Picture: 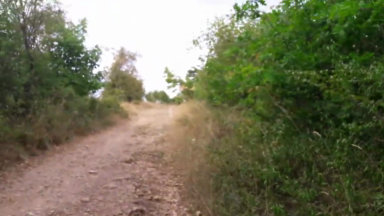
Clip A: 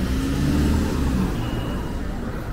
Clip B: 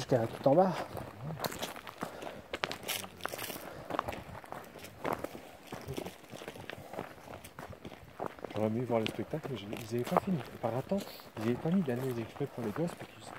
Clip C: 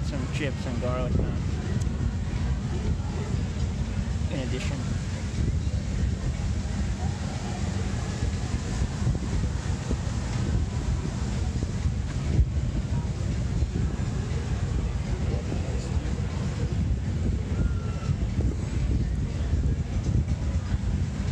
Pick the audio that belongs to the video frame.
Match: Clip B